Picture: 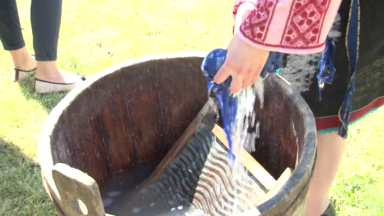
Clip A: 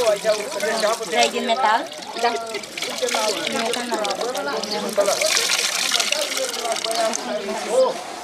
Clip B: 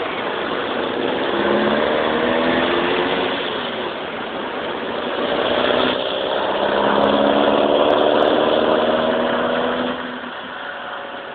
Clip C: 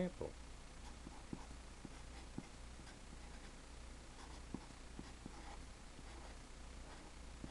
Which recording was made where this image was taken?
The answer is A